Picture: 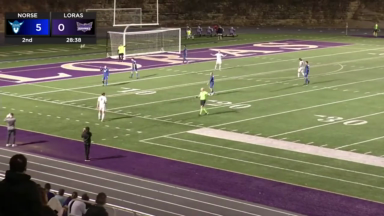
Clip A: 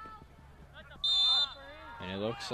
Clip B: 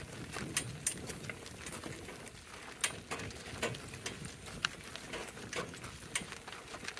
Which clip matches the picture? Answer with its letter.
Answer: A